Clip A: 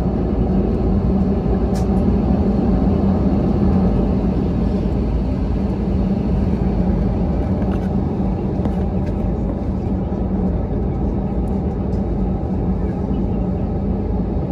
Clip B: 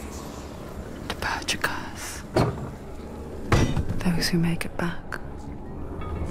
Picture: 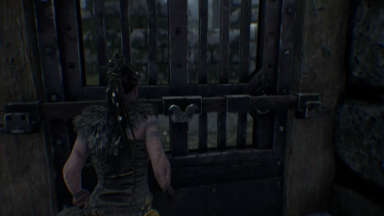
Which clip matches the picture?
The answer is B